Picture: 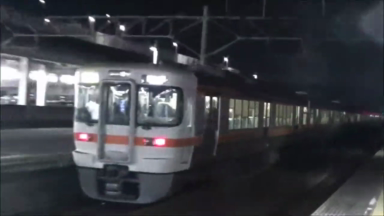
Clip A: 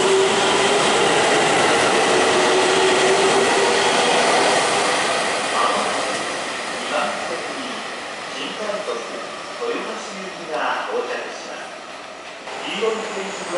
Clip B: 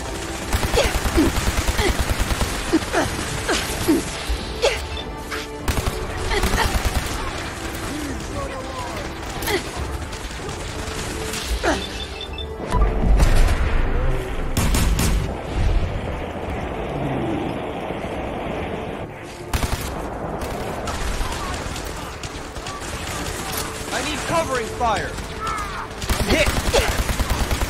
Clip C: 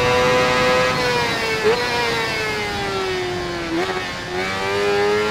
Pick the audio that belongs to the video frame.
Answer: A